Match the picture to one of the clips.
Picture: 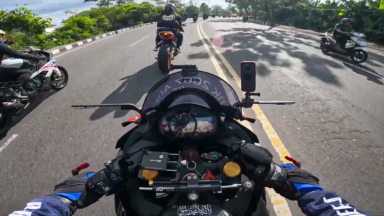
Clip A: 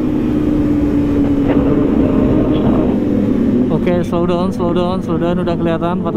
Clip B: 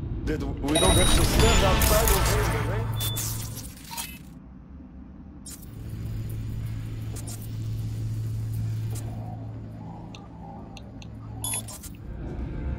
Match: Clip A